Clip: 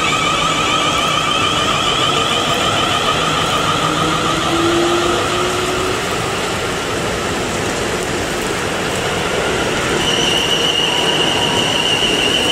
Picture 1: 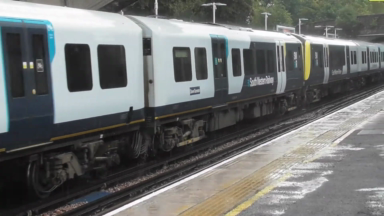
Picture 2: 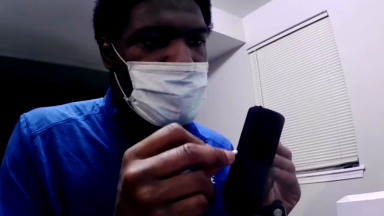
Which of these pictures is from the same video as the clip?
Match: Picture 1